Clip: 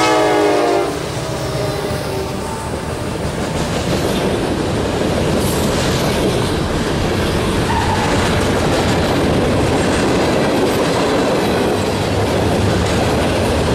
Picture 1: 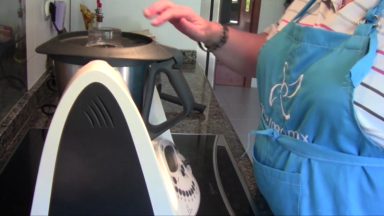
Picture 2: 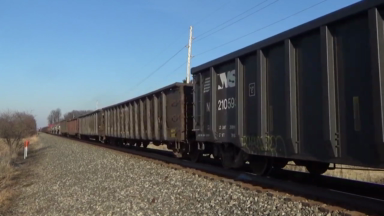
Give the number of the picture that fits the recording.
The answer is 2